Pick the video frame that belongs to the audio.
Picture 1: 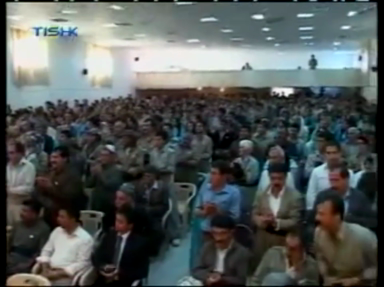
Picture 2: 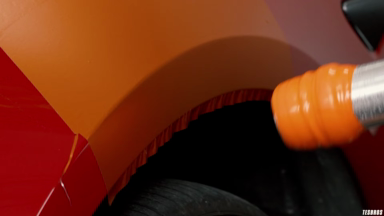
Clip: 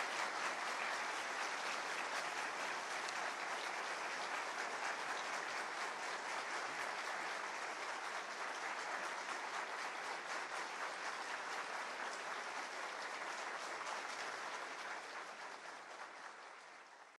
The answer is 1